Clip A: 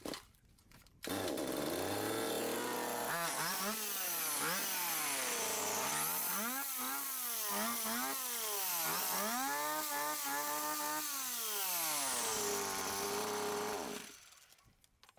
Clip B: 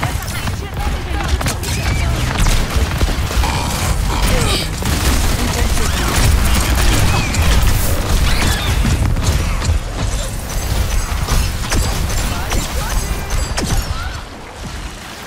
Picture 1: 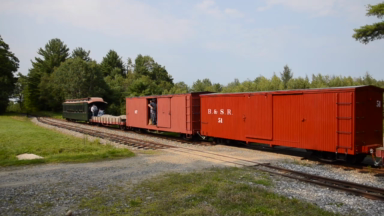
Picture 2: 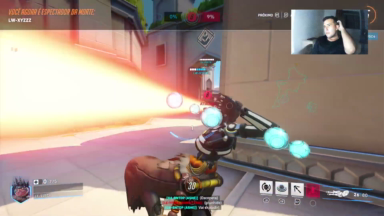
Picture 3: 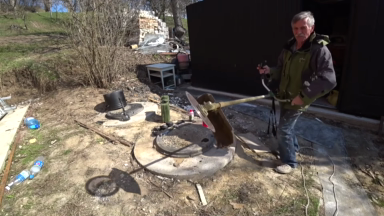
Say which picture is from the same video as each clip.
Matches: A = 3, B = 2